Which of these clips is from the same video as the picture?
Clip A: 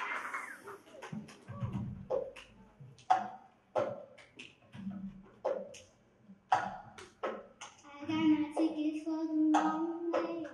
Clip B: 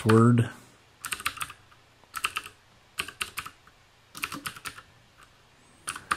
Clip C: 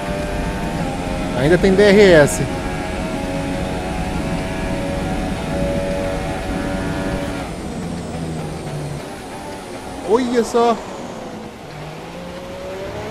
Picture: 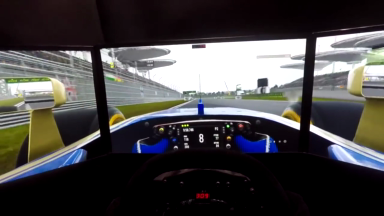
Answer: C